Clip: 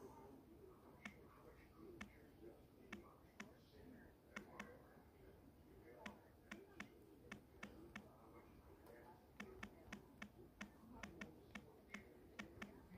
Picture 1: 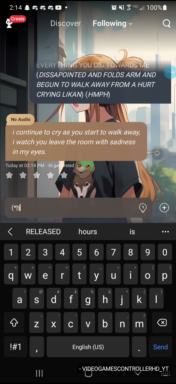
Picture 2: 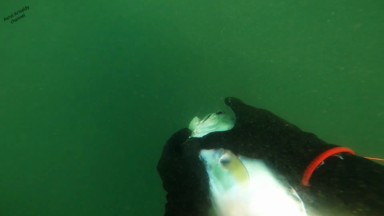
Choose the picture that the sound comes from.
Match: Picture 1